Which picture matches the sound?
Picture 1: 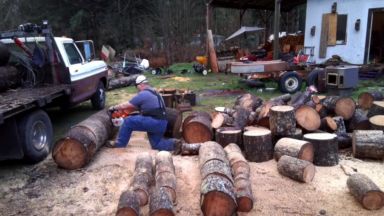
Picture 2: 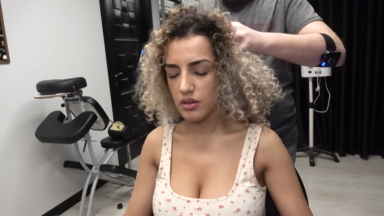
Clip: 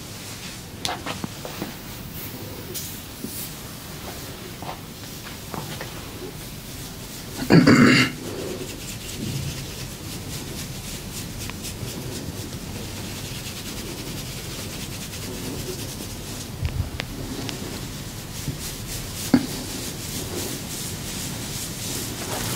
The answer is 2